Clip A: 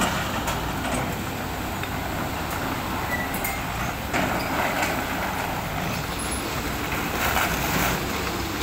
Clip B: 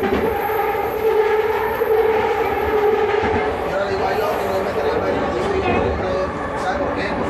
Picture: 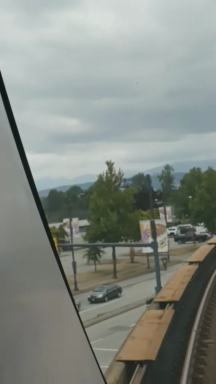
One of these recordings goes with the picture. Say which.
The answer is B